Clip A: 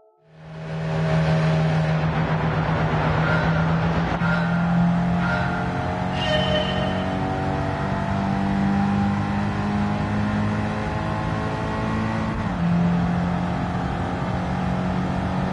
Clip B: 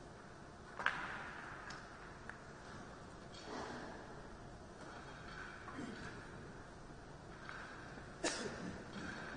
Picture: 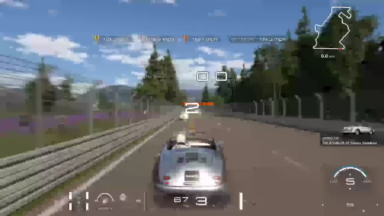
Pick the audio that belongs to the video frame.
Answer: A